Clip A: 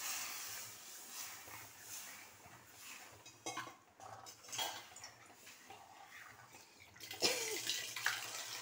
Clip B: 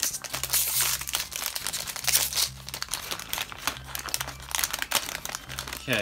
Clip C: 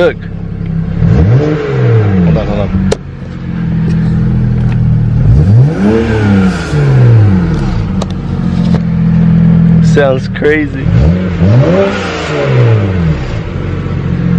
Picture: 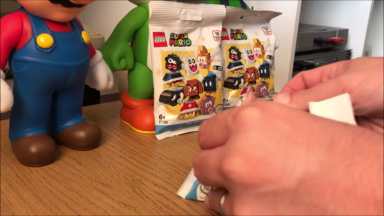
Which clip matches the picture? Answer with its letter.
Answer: B